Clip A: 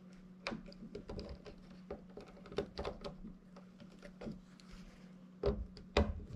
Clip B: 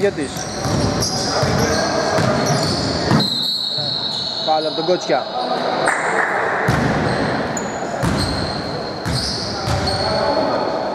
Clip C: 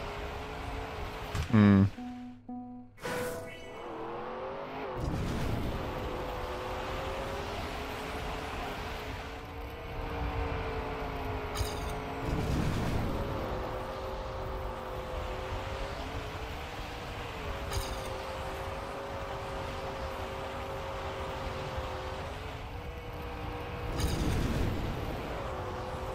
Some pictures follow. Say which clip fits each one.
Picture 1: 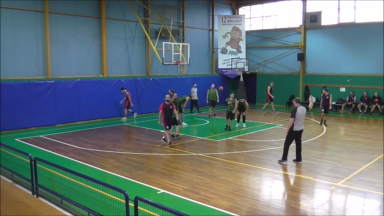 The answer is B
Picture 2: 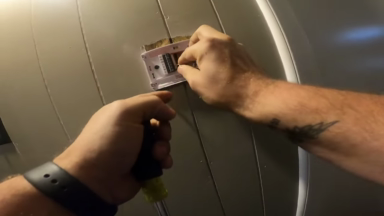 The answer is A